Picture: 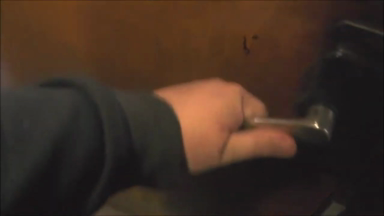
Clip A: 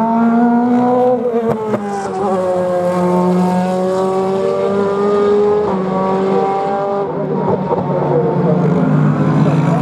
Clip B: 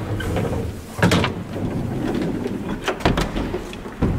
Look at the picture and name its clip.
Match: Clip B